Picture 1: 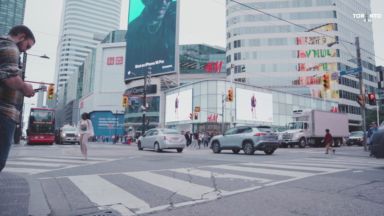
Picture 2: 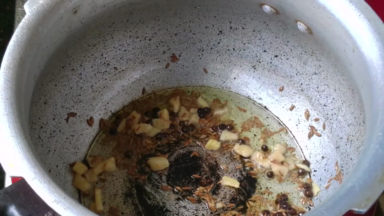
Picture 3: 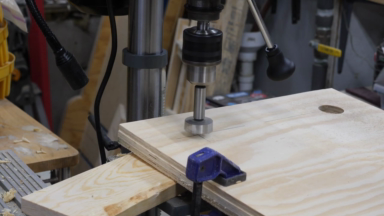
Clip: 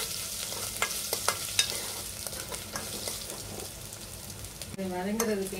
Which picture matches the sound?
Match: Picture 2